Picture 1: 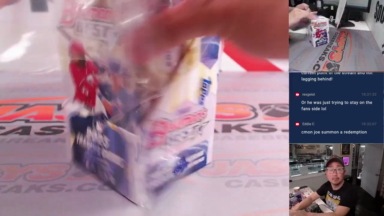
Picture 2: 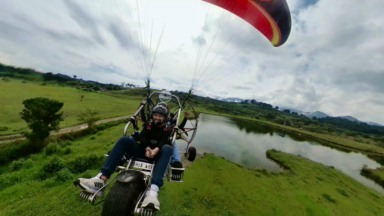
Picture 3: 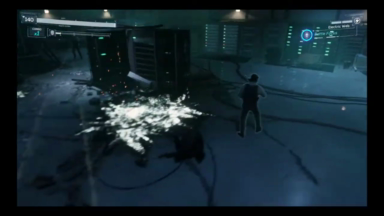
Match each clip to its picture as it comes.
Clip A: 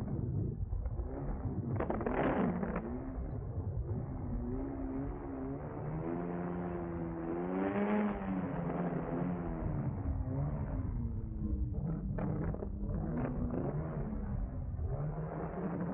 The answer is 2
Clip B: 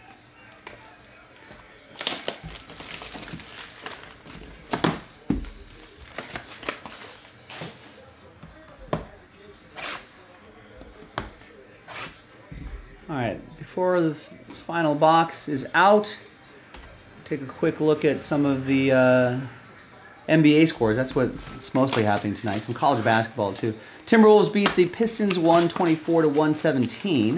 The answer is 1